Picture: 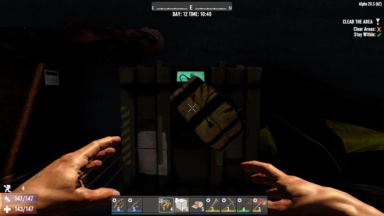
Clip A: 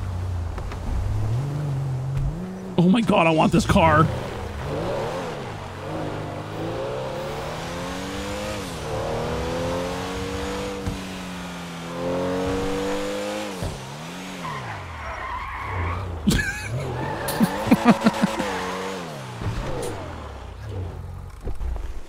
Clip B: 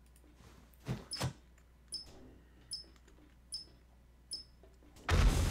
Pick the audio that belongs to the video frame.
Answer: B